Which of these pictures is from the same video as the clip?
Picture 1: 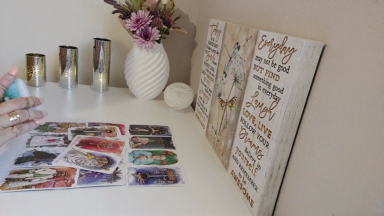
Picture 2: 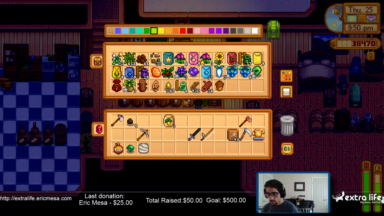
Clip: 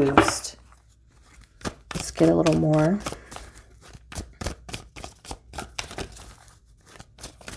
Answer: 1